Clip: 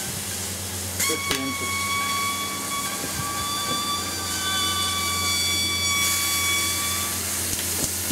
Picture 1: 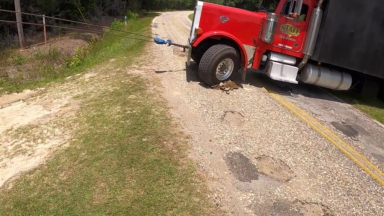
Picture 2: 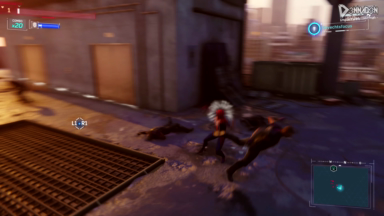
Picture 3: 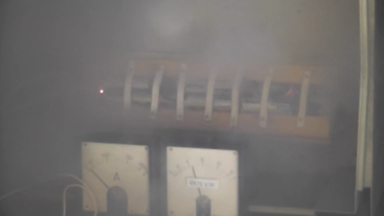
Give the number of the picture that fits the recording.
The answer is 3